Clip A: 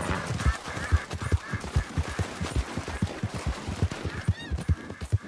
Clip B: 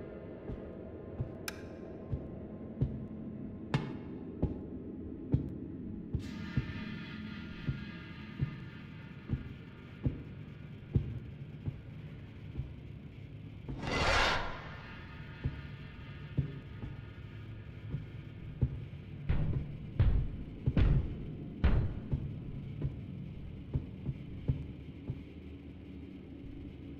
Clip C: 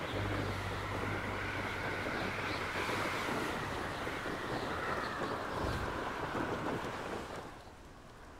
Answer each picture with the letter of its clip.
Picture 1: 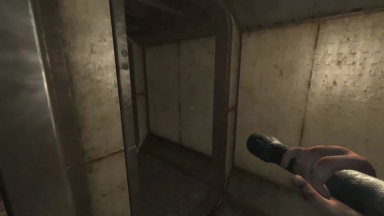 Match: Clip B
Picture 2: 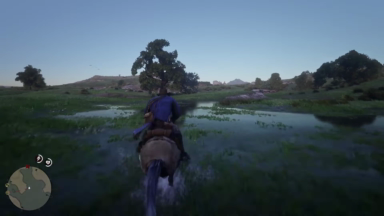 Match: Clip A